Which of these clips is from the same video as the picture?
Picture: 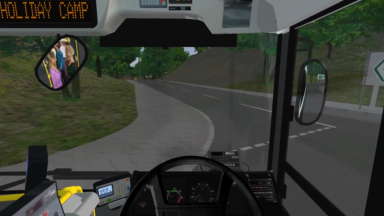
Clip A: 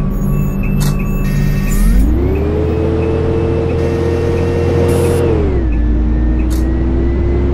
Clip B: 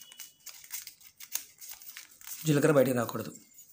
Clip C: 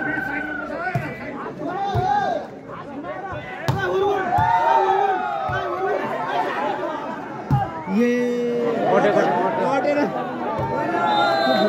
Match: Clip A